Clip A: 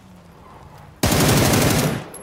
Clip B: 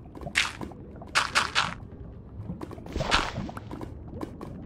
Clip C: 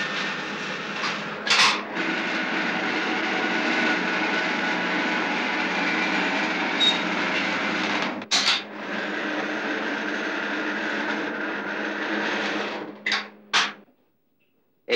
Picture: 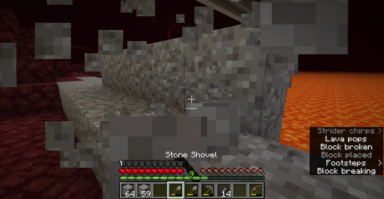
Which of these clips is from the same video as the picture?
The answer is B